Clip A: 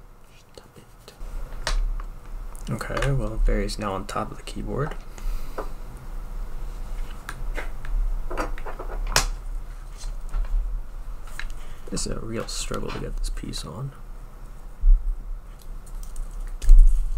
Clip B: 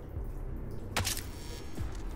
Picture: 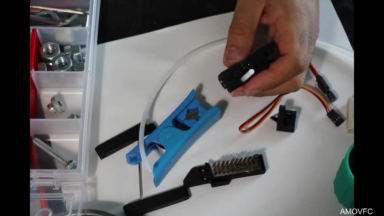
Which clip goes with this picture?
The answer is A